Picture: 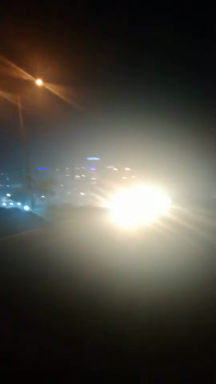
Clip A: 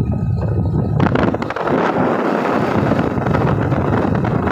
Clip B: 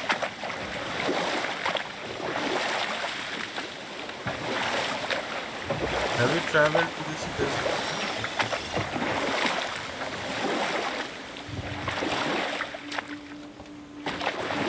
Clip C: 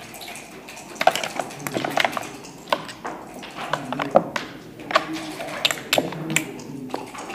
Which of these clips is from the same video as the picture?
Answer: A